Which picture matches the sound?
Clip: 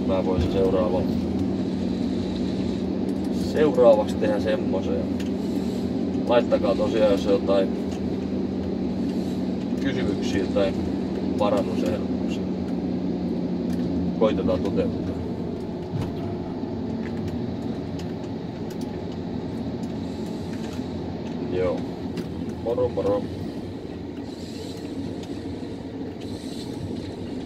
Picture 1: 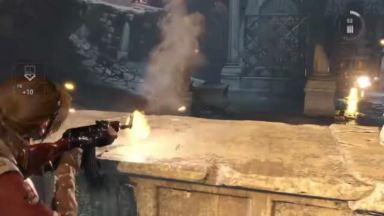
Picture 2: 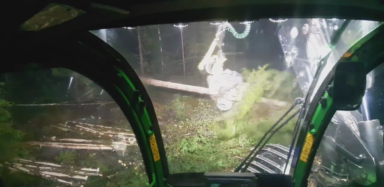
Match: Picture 2